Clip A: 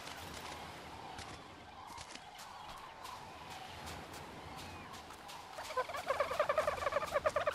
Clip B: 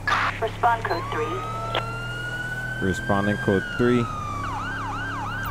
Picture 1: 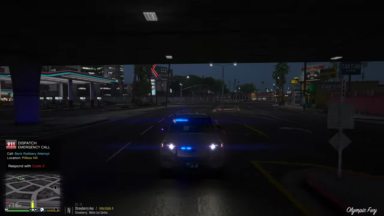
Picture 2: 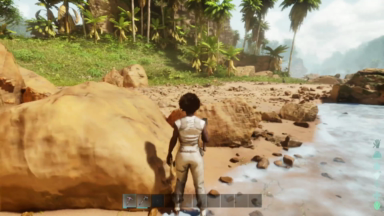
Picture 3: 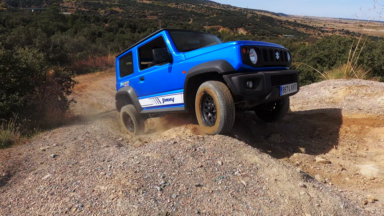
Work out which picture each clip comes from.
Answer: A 2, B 1